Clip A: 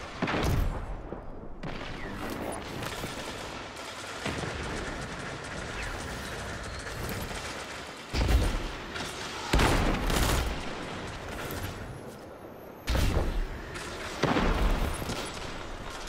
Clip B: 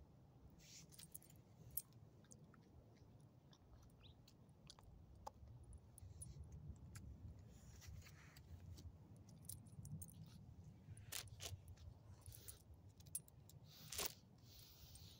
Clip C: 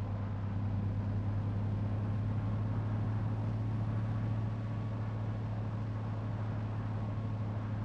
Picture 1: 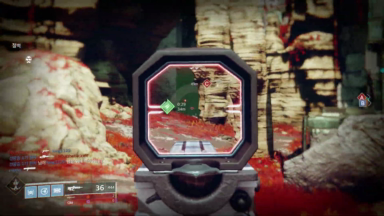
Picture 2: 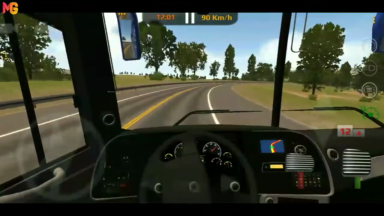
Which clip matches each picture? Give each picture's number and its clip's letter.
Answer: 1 A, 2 C